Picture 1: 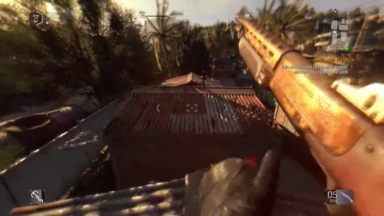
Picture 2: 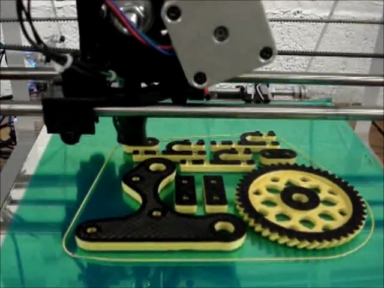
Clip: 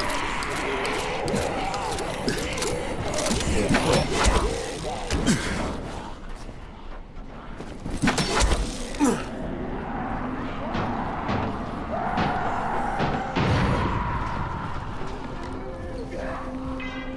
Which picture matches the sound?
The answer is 1